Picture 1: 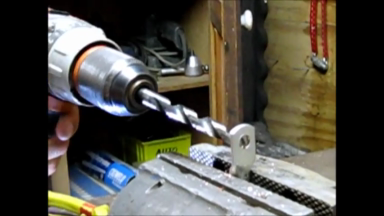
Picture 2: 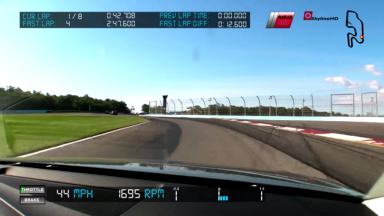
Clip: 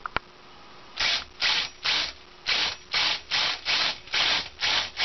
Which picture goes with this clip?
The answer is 1